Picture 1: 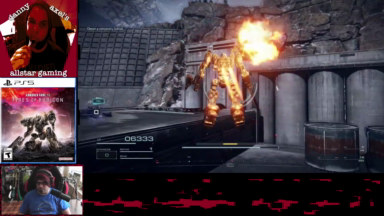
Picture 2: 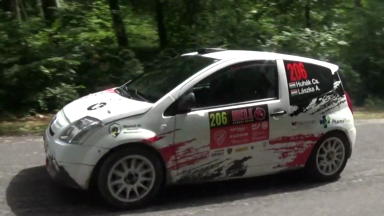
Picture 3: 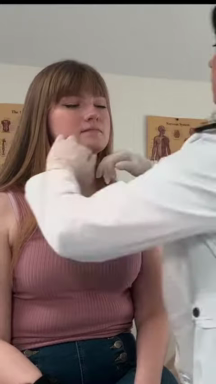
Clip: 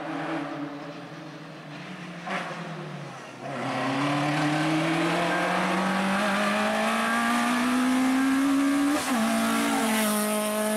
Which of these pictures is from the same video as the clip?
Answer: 2